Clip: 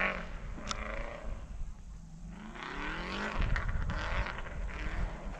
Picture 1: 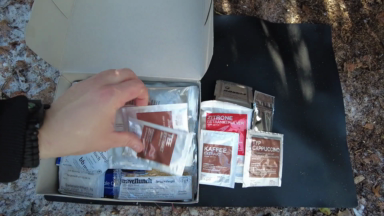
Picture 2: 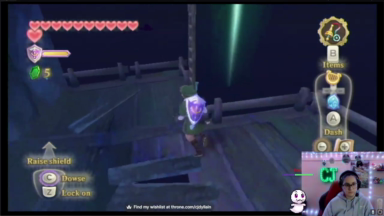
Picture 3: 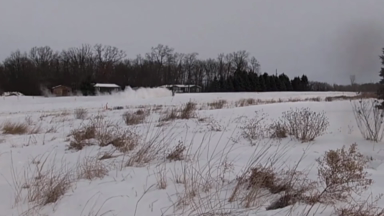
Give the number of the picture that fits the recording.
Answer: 3